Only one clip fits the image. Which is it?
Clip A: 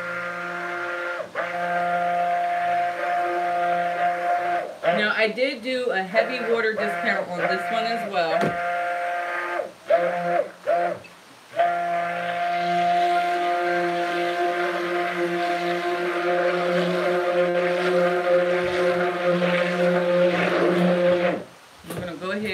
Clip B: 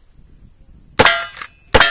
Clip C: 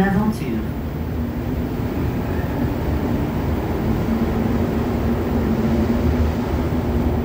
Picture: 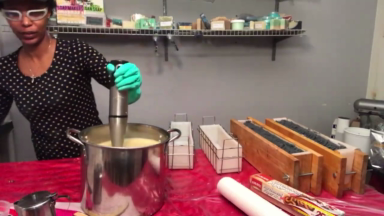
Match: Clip A